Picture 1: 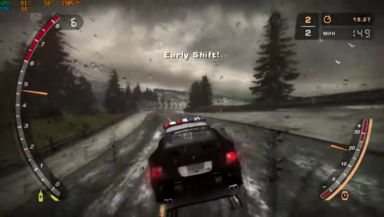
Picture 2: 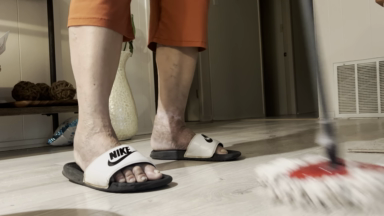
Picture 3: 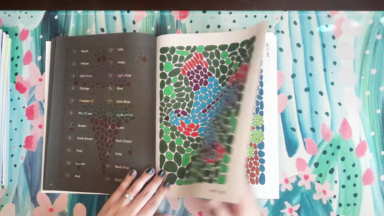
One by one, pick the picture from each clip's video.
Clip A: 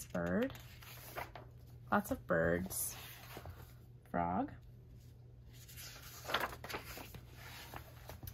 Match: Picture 3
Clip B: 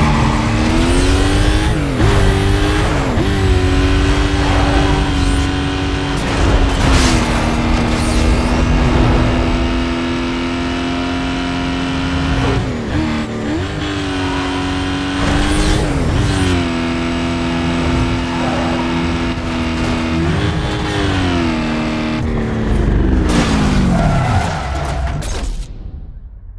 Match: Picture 1